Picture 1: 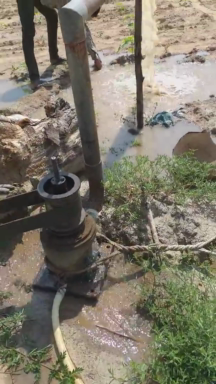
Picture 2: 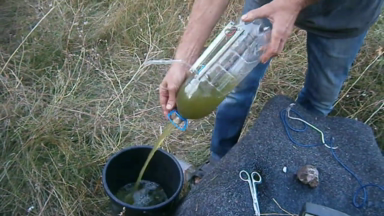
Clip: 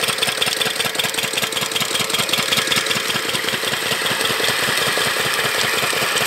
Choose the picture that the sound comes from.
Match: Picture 1